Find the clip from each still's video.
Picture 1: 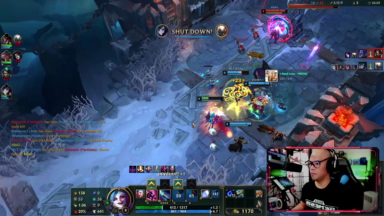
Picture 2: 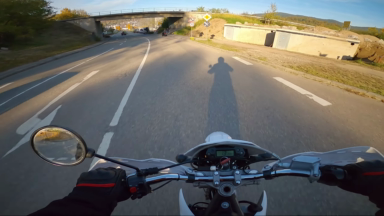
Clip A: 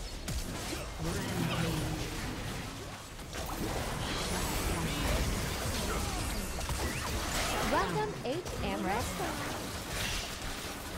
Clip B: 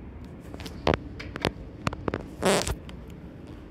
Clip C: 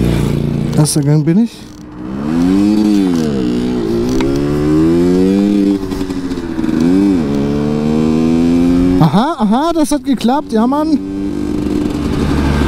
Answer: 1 A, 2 C